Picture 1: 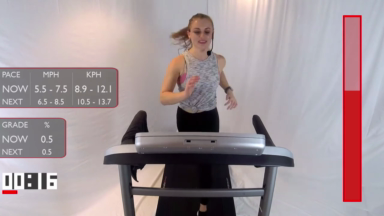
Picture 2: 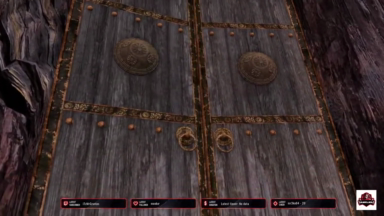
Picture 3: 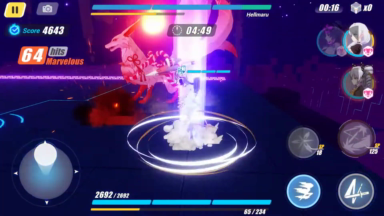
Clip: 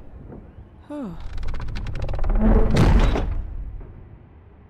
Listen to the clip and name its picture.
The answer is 2